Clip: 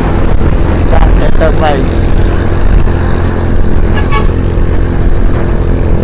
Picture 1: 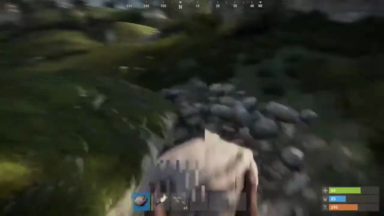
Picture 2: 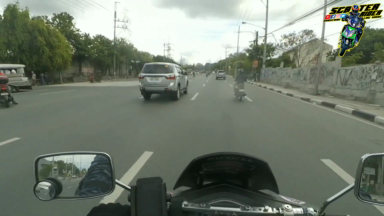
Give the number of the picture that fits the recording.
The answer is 2